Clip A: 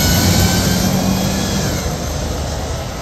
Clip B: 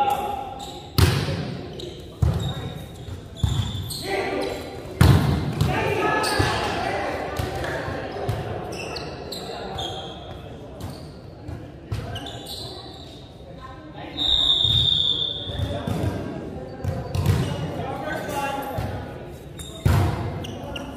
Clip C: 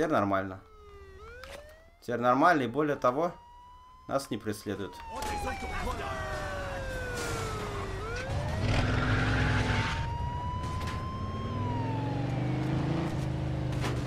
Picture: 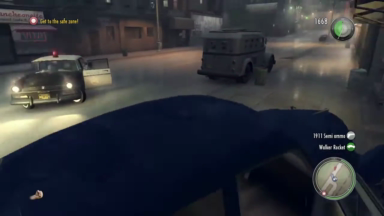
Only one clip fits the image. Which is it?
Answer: C